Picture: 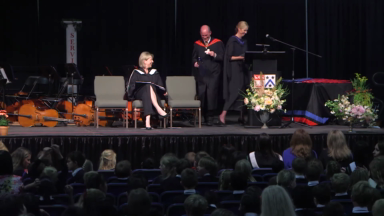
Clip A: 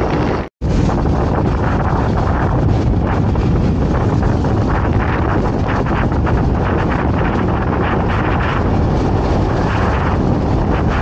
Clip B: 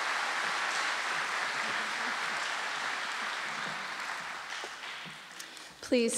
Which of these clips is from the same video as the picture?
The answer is B